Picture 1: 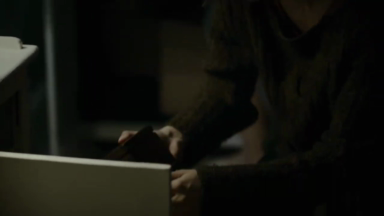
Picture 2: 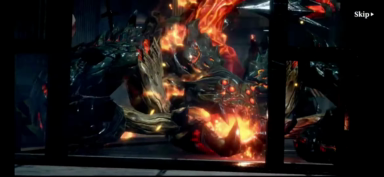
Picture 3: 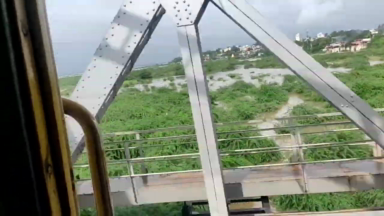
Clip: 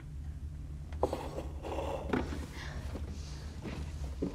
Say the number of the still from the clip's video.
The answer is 1